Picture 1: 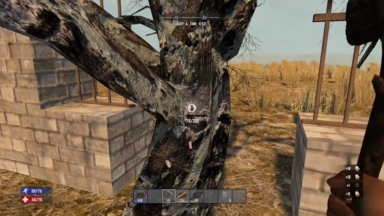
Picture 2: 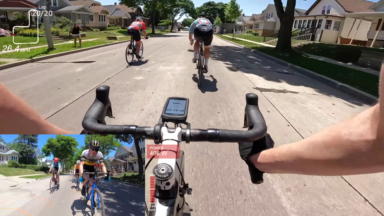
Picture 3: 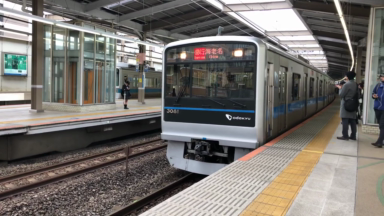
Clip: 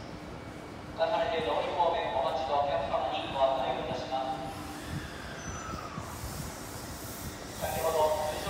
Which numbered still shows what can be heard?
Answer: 3